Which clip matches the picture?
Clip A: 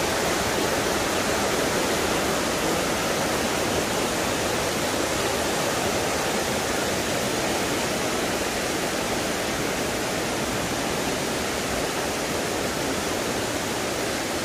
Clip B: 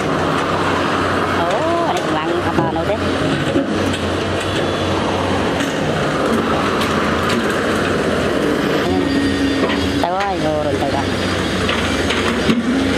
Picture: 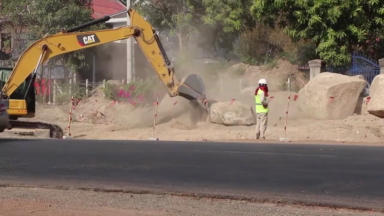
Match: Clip B